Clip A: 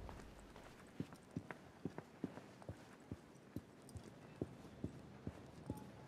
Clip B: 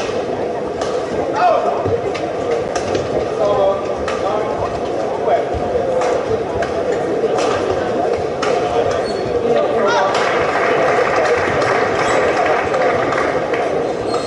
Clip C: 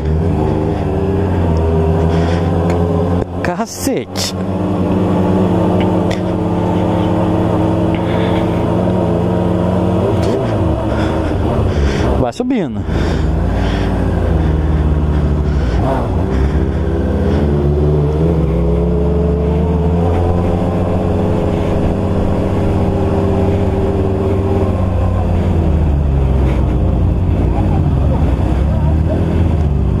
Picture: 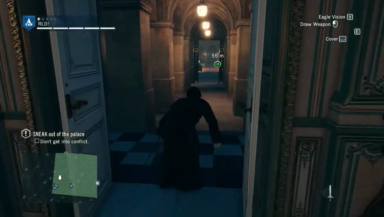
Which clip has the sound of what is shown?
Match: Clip A